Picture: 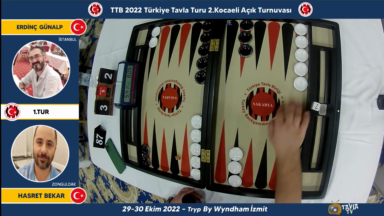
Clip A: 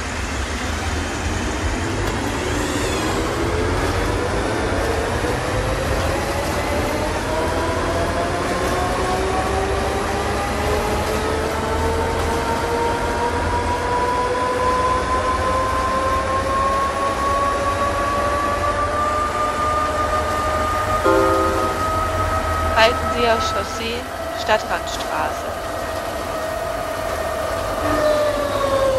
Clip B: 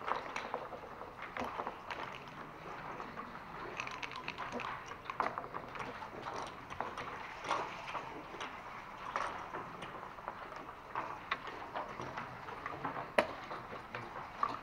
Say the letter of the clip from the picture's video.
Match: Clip B